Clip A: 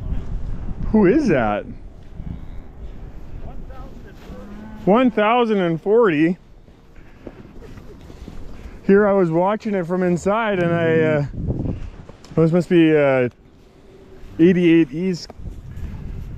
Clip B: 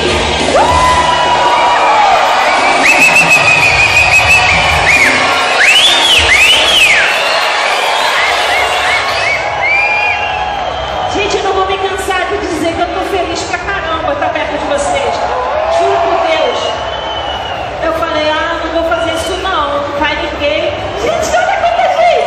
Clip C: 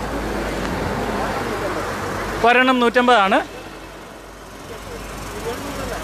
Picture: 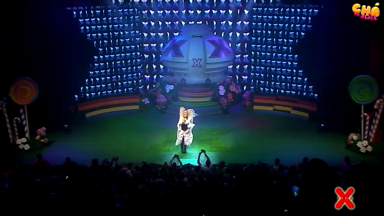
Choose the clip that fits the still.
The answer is B